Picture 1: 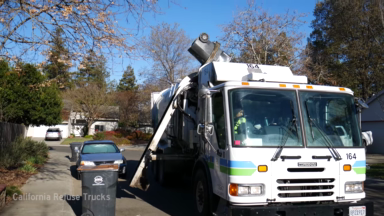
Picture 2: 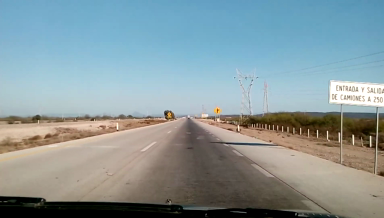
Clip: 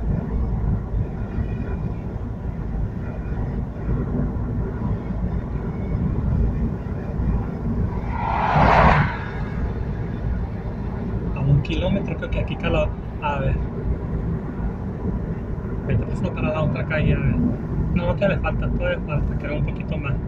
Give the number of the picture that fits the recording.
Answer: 2